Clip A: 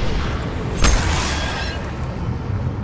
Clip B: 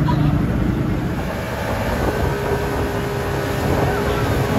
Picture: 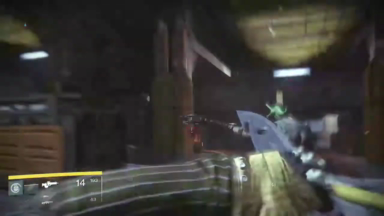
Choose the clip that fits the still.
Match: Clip A